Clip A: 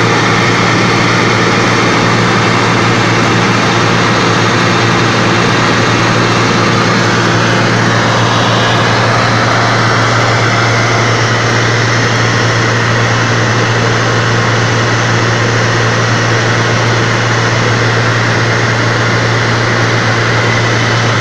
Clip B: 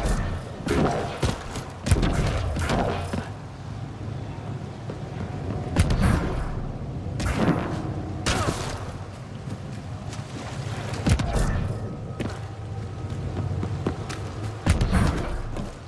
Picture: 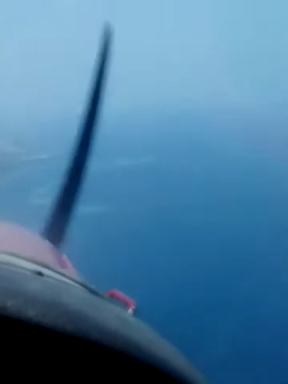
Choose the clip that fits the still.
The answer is A